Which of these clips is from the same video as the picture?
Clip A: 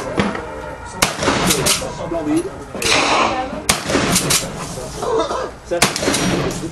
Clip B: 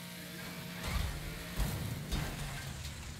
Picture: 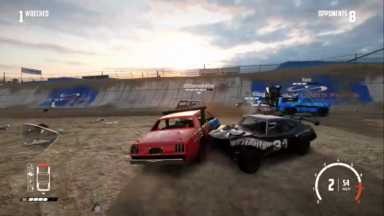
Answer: B